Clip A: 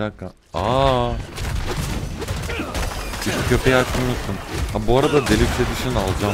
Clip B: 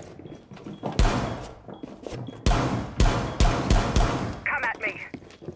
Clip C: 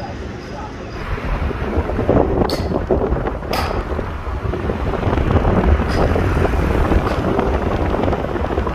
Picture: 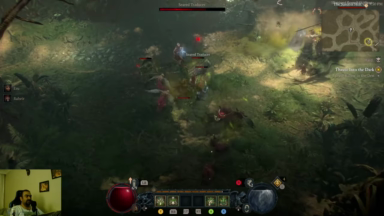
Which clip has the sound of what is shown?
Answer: A